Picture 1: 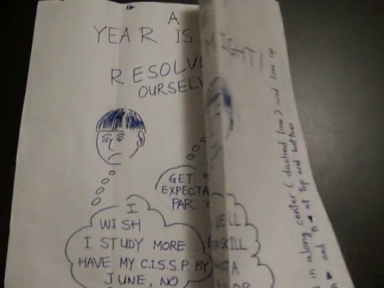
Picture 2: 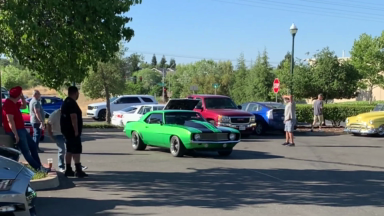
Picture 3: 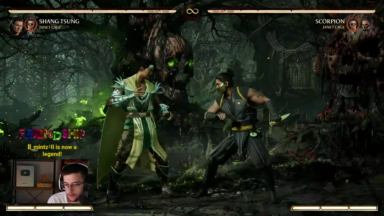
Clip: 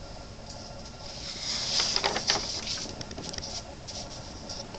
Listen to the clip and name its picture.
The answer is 1